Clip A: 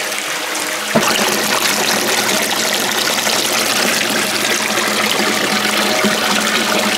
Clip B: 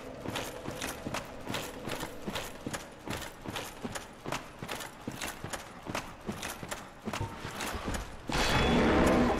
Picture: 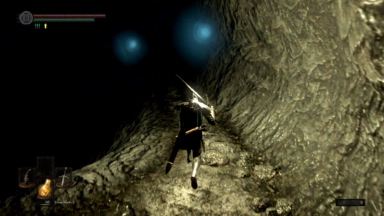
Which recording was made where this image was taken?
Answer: B